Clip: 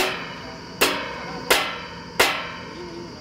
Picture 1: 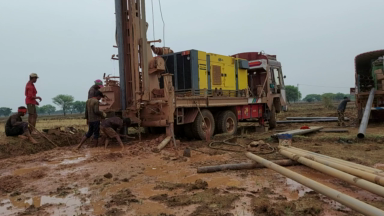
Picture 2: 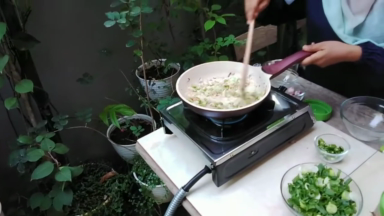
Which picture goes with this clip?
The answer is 1